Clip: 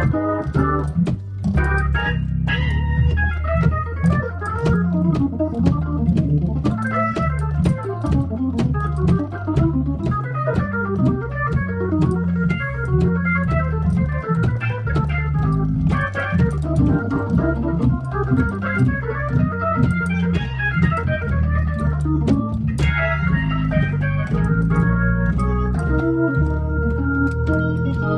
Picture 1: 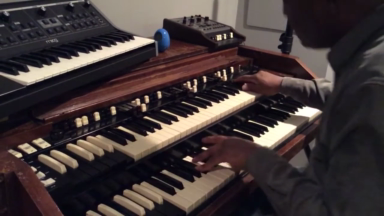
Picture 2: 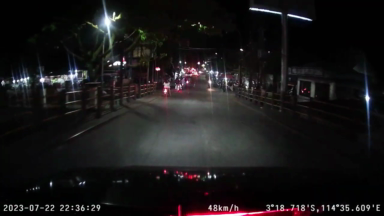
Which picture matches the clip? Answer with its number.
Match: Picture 1